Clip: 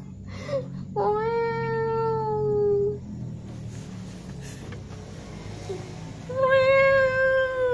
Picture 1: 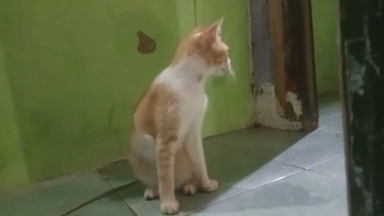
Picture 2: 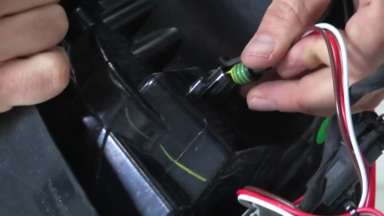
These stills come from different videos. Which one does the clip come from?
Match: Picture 1